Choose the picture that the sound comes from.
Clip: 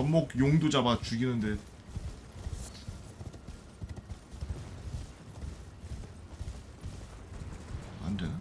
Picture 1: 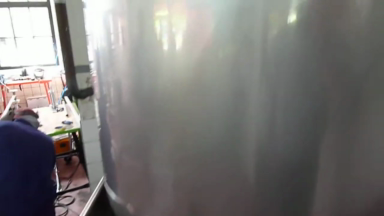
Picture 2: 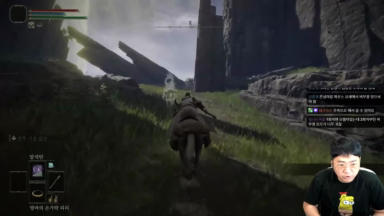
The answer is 2